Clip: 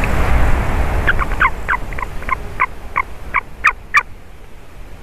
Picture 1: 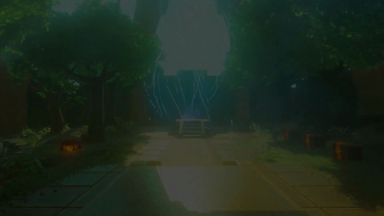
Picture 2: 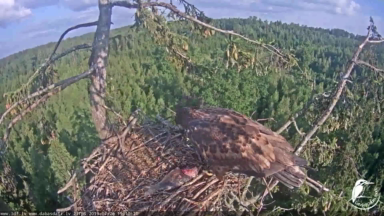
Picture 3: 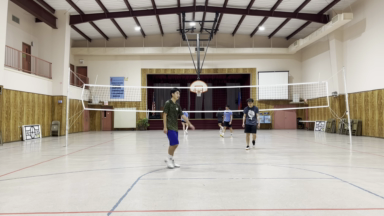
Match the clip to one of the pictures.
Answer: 2